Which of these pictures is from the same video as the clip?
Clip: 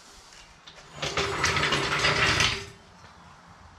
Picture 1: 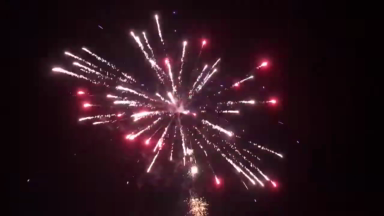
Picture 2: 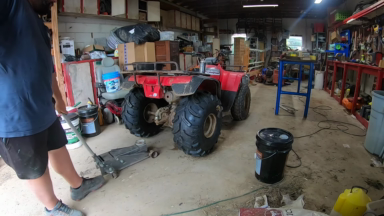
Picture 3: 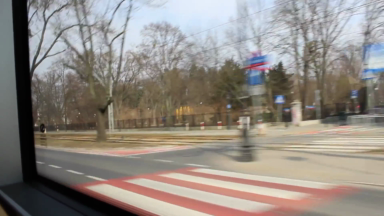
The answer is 2